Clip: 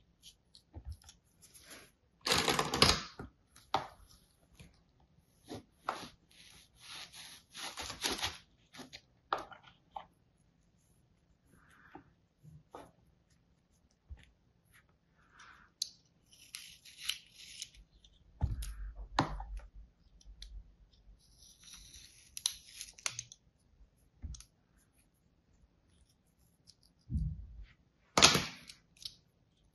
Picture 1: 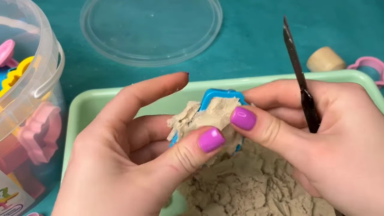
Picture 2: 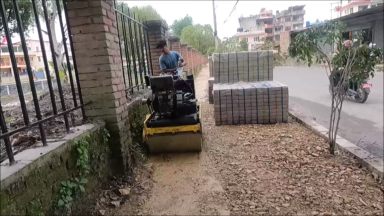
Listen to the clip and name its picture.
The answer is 1